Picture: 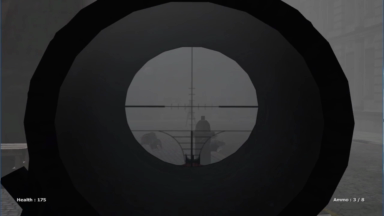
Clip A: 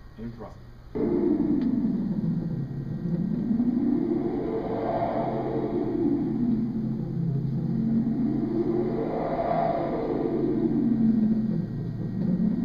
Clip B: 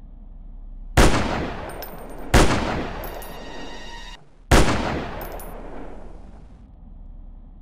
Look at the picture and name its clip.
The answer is B